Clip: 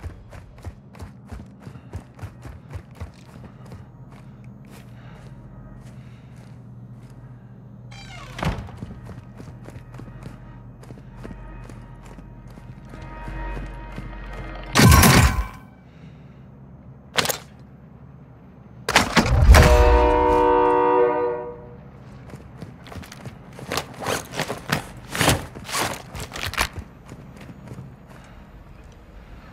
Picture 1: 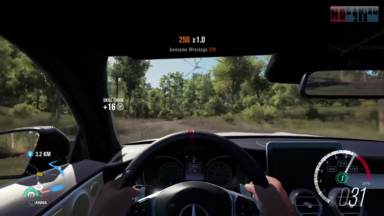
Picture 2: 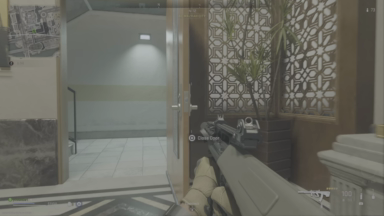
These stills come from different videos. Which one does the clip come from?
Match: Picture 2